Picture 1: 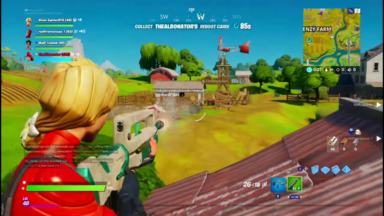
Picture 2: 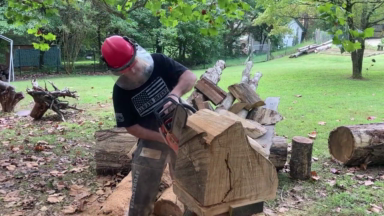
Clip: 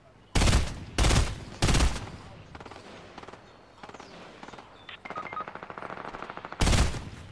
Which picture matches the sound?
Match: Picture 1